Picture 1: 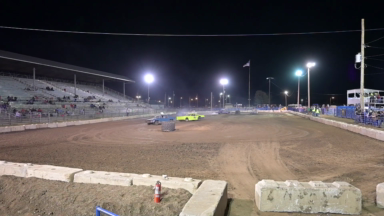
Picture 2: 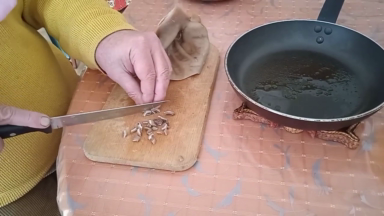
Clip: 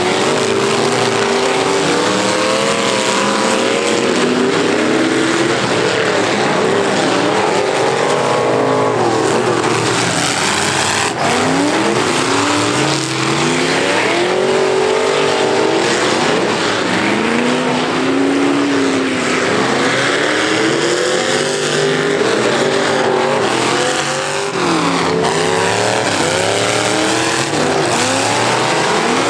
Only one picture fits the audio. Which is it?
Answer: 1